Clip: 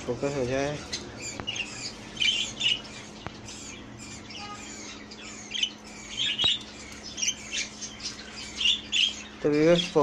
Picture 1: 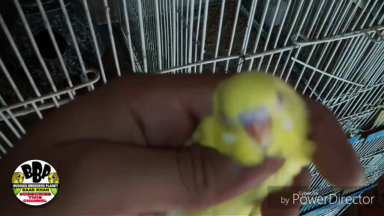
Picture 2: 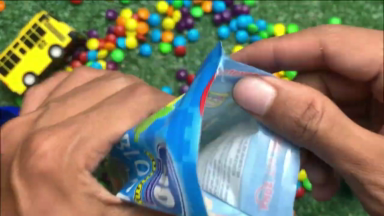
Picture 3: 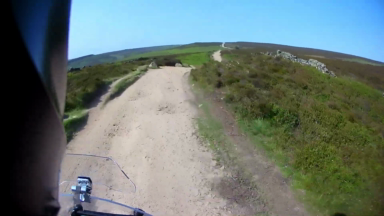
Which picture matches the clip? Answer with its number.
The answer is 1